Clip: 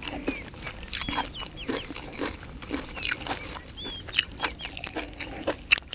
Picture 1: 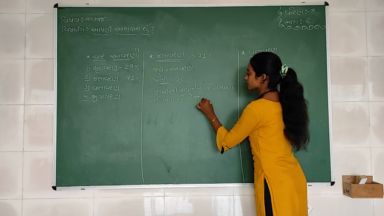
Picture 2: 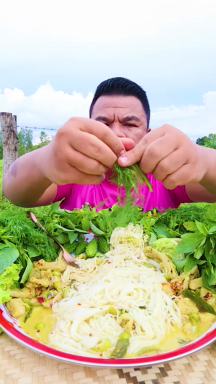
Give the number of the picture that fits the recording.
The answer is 2